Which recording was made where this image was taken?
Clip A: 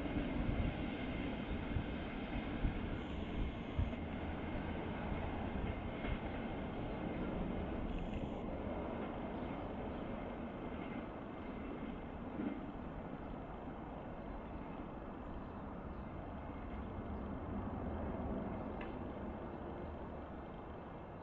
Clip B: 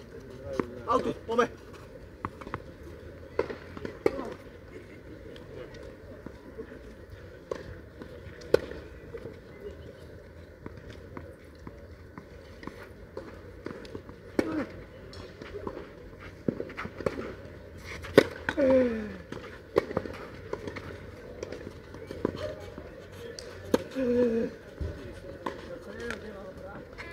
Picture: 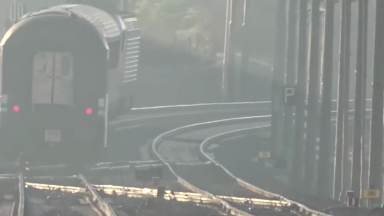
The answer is A